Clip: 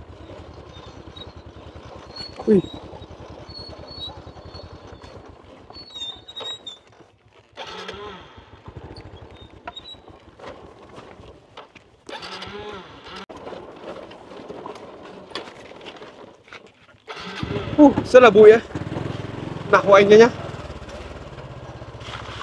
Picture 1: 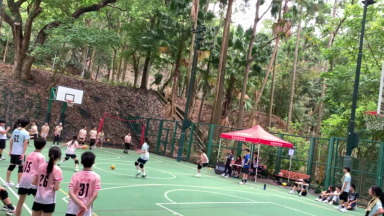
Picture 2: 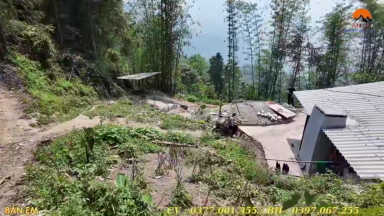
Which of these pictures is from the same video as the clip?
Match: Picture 2